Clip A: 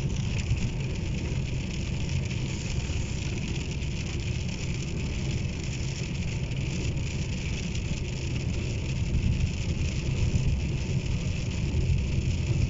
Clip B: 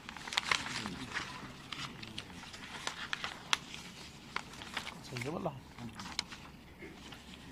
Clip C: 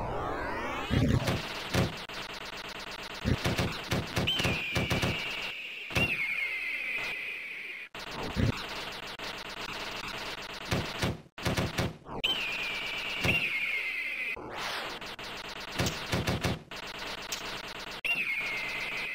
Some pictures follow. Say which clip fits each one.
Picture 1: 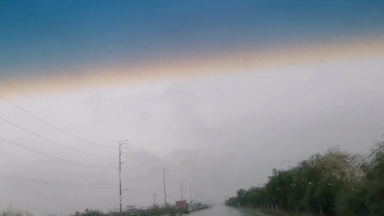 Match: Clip A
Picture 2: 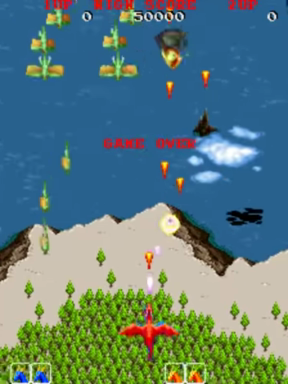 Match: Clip C